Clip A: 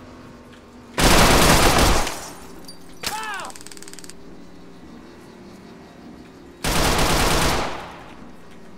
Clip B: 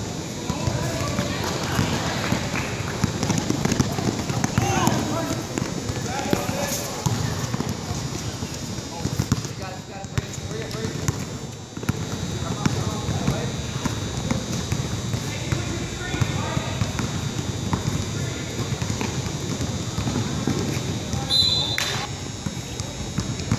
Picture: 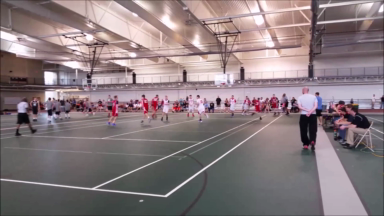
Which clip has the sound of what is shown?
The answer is B